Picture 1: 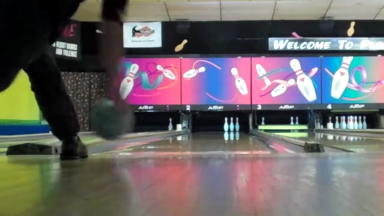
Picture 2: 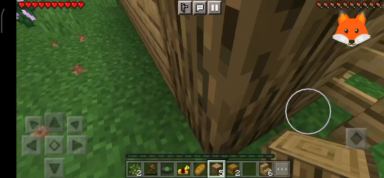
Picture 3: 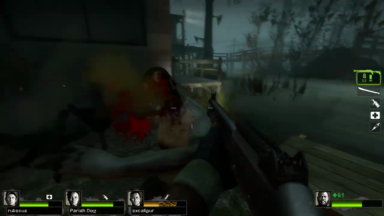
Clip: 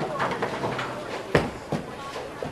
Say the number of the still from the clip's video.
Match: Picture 1